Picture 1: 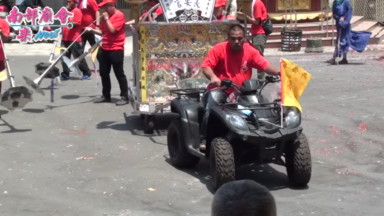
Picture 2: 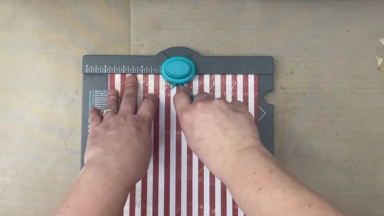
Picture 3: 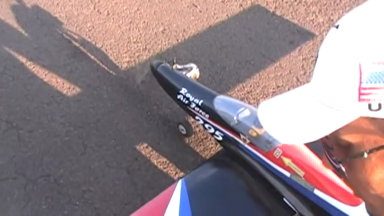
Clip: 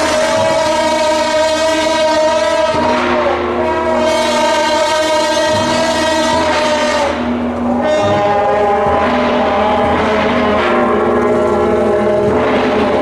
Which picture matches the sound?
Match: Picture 1